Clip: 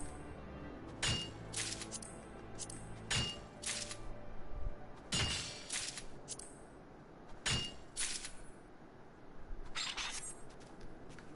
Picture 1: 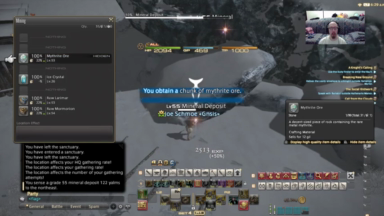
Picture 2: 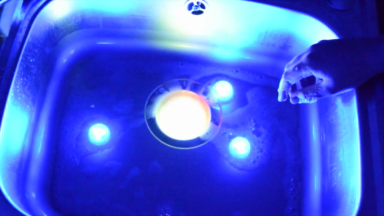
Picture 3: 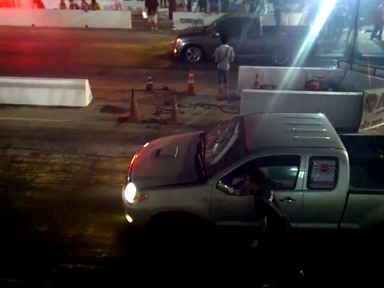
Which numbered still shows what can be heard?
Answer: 1